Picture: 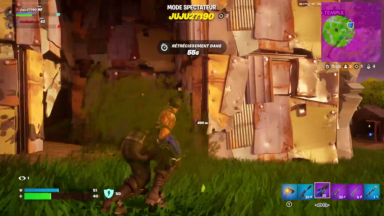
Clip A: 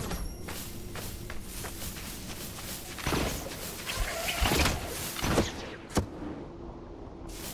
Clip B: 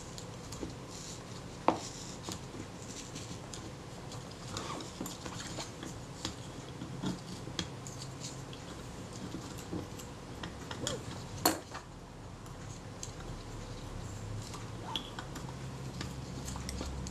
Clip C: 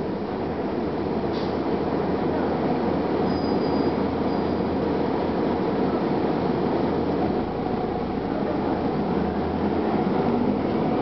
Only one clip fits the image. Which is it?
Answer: A